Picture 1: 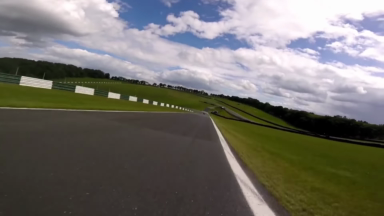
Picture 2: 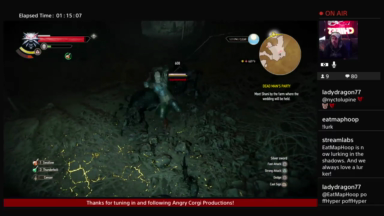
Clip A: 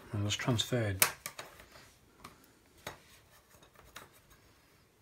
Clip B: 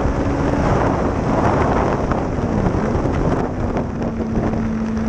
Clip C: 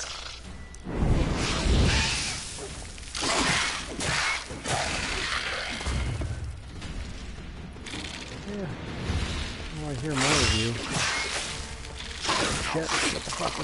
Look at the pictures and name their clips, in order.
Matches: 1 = B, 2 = C